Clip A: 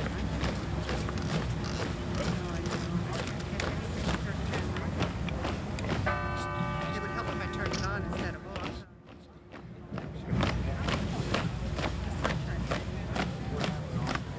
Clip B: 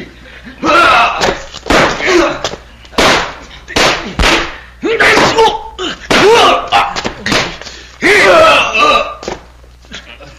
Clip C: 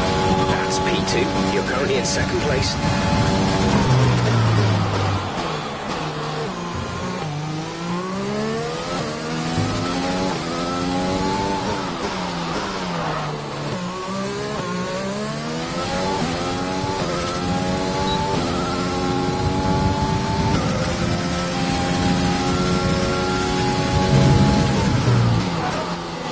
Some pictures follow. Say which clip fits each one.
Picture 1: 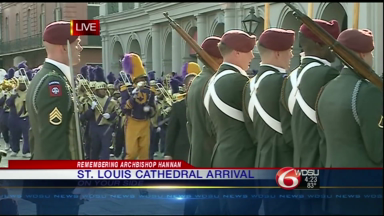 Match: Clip A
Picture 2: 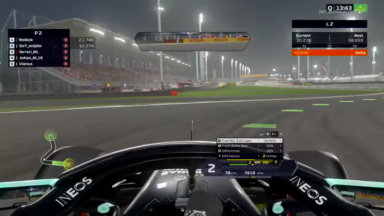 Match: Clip C